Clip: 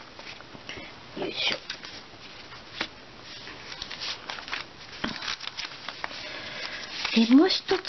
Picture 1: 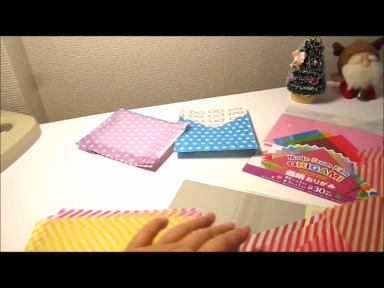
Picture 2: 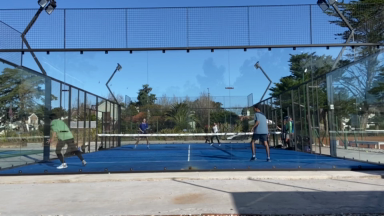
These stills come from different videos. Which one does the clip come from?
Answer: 1